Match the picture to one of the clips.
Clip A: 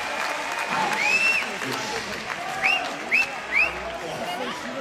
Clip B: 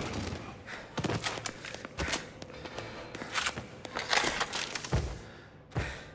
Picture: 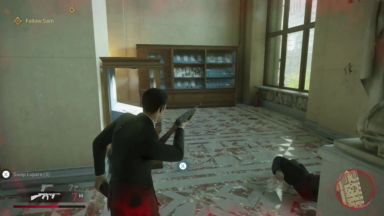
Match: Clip B